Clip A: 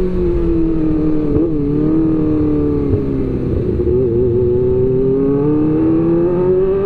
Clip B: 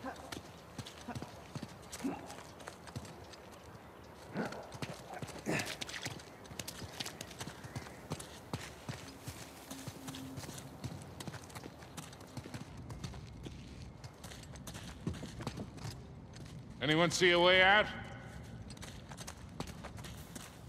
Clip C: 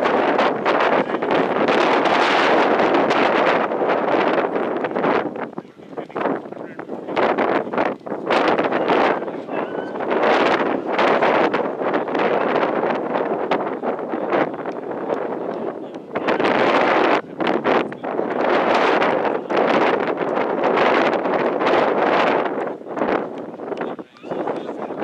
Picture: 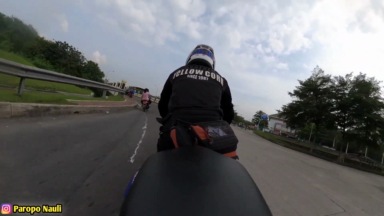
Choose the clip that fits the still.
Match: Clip A